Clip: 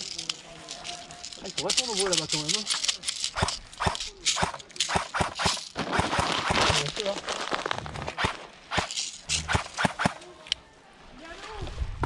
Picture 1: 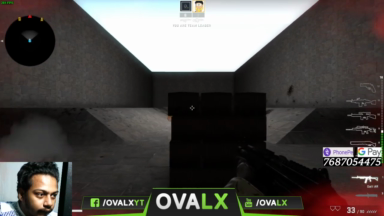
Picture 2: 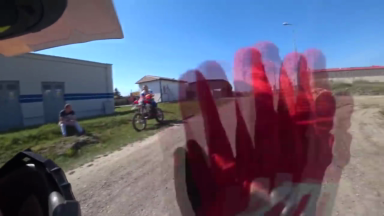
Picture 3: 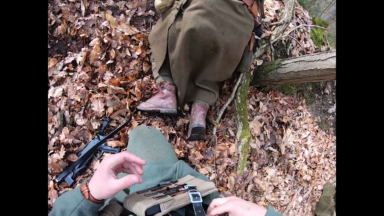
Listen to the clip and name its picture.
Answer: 3